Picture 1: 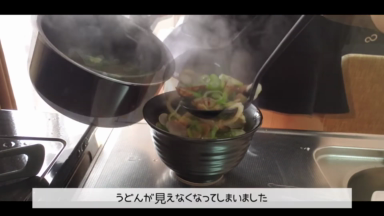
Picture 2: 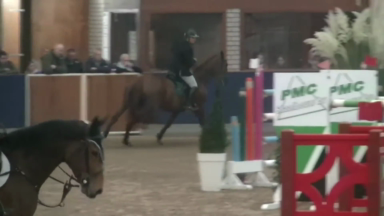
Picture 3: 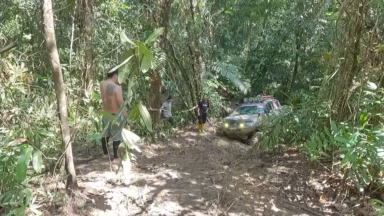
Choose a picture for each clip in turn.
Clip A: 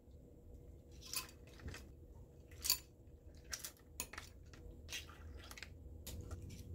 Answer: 1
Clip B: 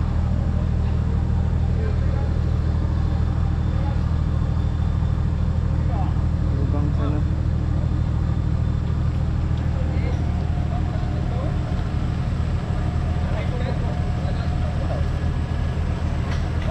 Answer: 3